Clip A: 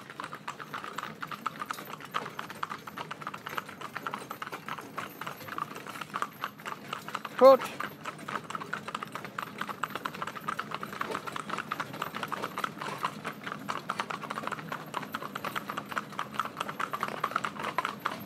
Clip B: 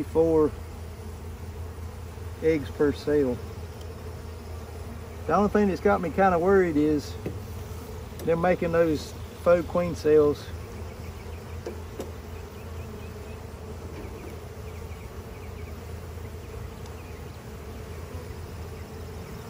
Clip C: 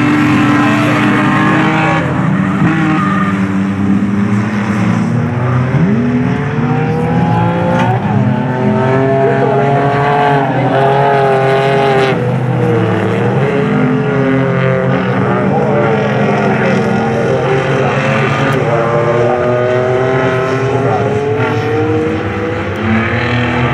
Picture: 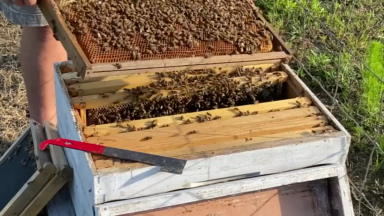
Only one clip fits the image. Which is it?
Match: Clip B